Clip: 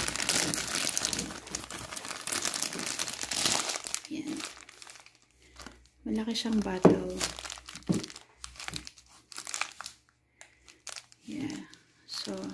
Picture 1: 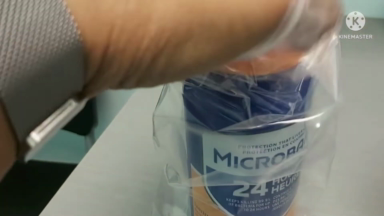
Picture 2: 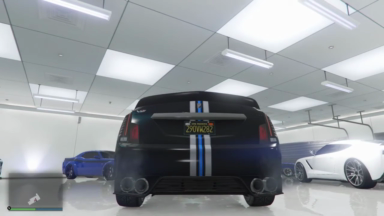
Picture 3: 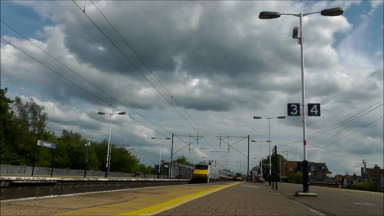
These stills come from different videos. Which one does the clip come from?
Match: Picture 1